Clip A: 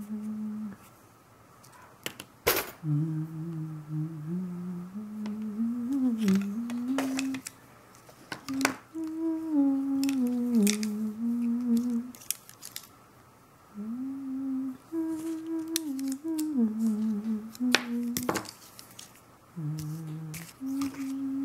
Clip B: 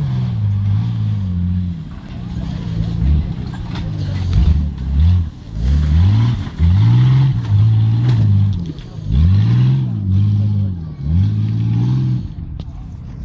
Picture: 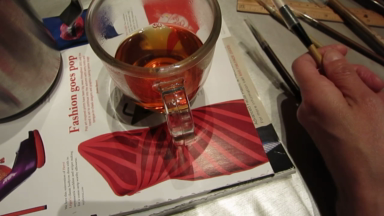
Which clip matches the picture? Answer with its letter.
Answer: A